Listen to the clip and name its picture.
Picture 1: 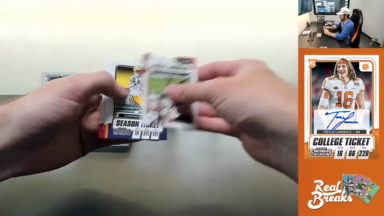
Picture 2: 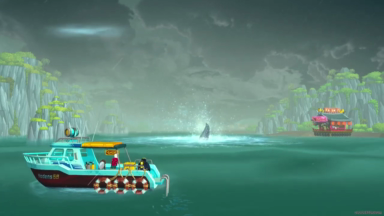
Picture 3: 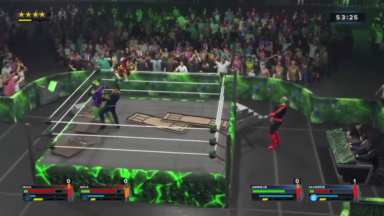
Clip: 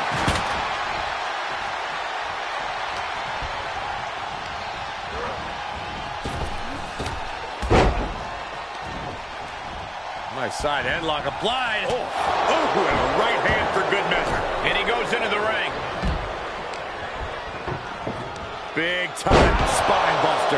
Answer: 3